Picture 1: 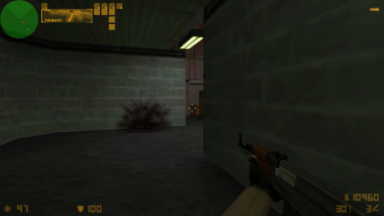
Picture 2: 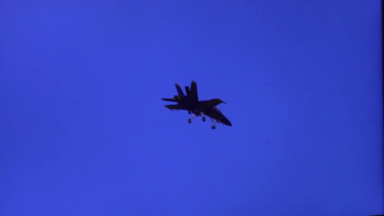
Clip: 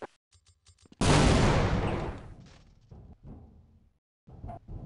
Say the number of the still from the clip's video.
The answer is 1